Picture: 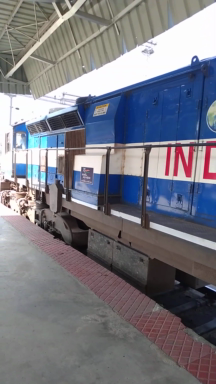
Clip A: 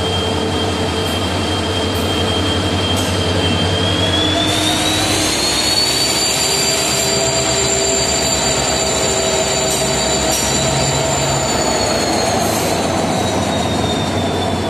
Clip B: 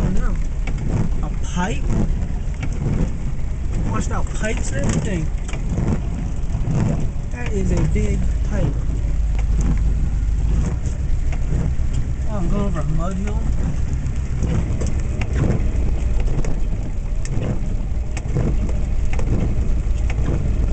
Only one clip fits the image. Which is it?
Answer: A